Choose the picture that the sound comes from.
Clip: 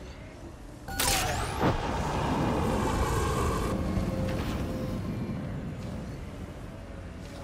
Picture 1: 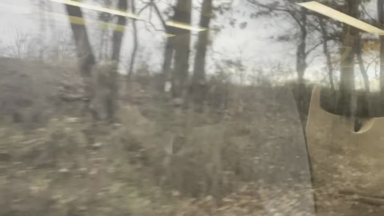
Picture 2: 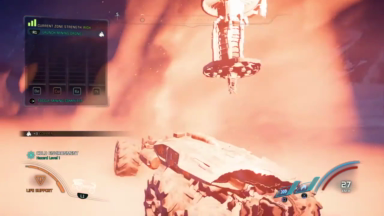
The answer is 2